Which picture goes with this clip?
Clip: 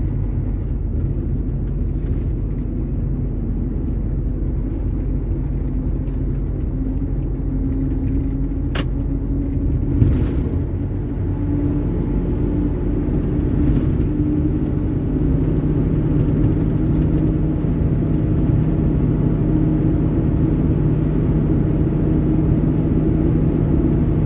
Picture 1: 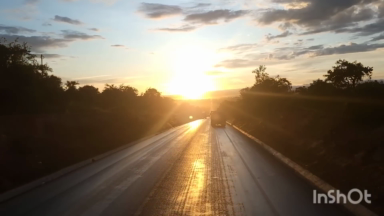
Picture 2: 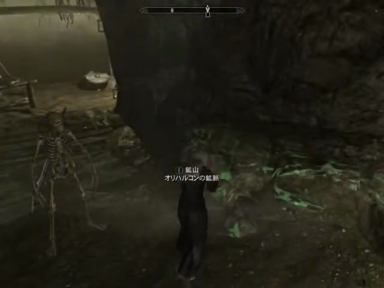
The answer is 1